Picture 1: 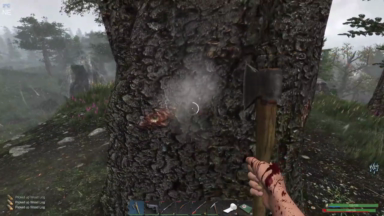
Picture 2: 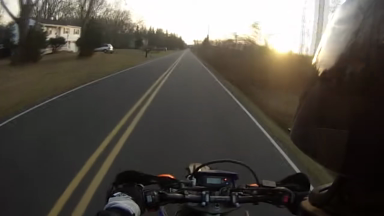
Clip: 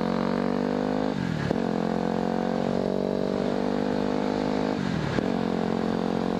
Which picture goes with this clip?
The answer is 2